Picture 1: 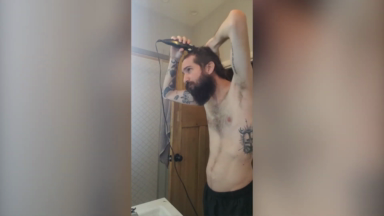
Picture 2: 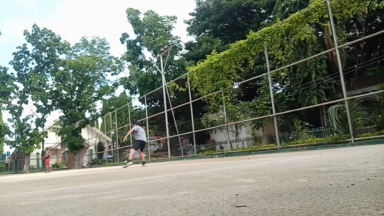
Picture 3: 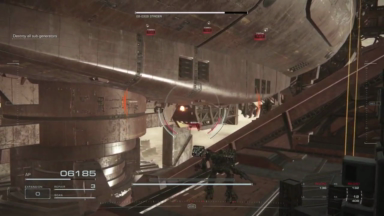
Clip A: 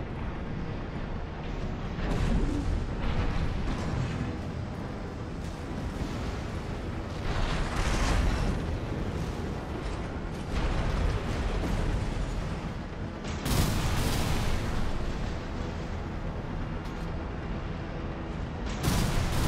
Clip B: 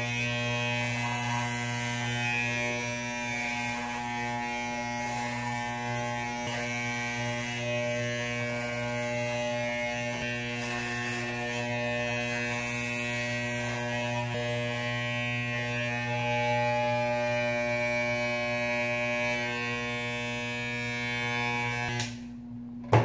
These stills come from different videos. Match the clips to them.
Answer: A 3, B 1